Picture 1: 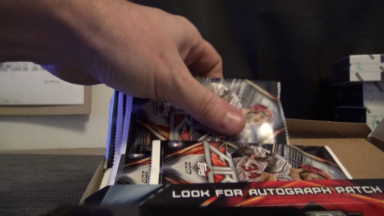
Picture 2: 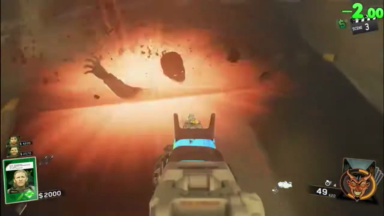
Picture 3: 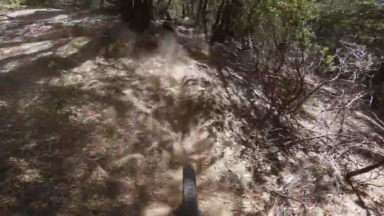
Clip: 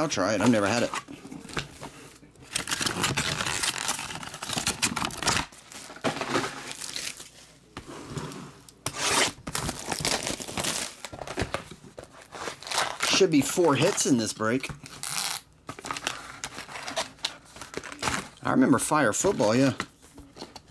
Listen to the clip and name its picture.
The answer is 1